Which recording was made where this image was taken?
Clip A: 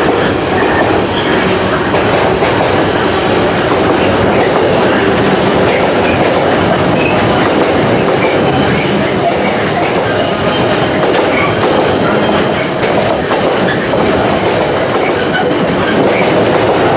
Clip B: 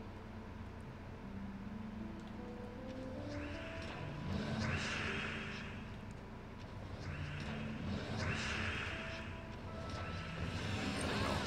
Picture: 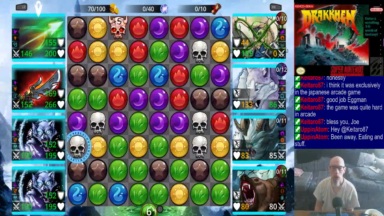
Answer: B